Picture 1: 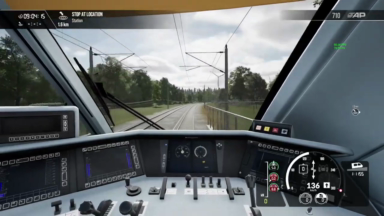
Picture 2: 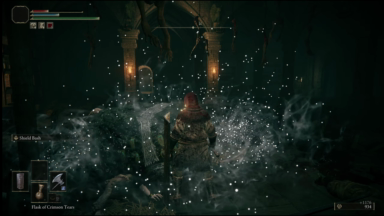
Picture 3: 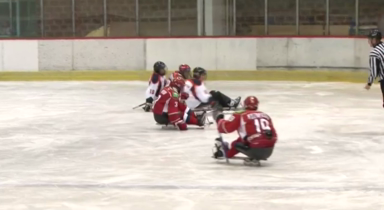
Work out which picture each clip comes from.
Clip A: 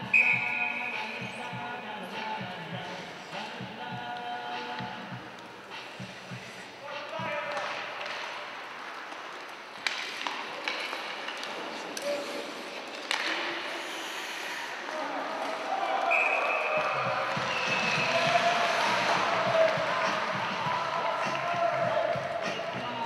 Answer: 3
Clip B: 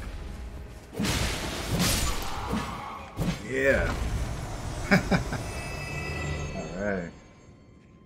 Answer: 2